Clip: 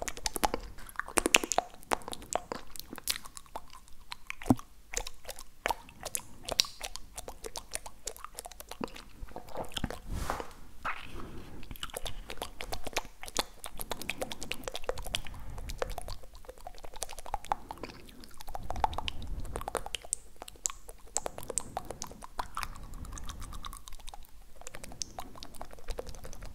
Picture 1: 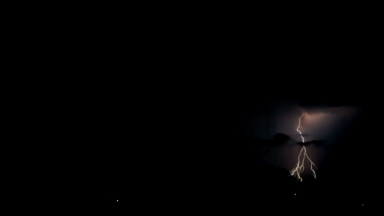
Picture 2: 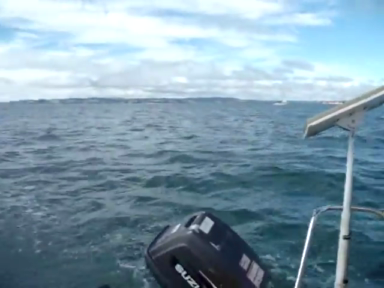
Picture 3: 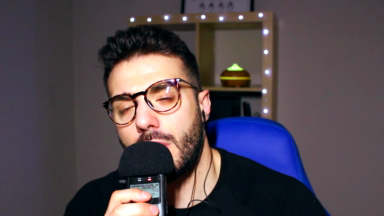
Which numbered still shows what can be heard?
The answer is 3